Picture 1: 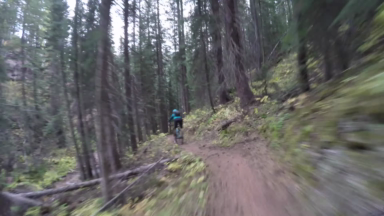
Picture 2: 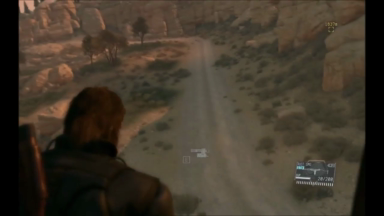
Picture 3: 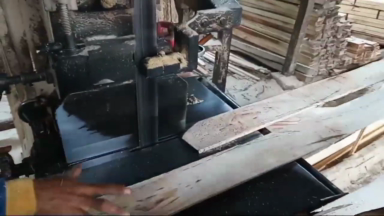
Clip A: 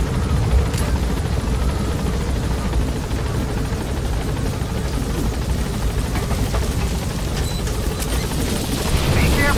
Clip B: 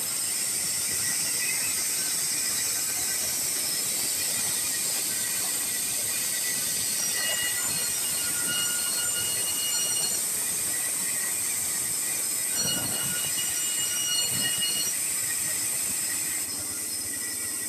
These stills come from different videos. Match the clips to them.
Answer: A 2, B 3